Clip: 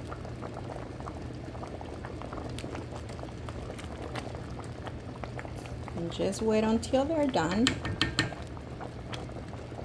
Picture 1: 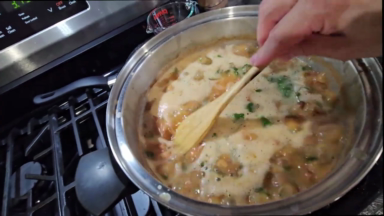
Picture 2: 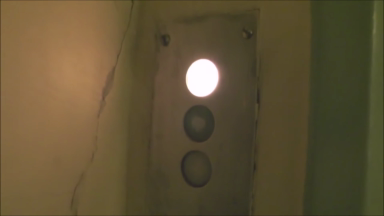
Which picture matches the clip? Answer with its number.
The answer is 1